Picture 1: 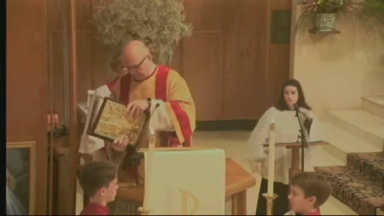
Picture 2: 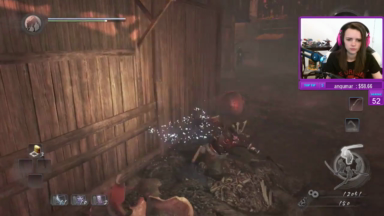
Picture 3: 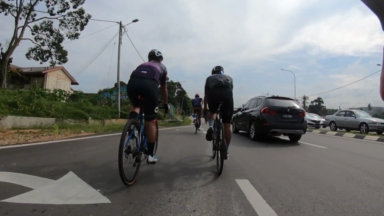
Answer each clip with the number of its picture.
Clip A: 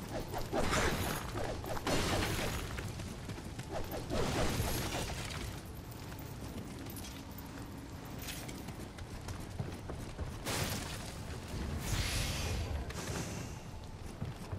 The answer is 2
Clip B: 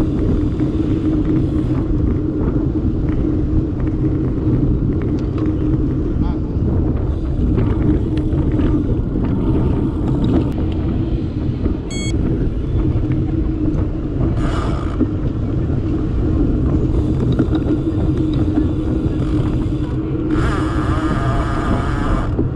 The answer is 3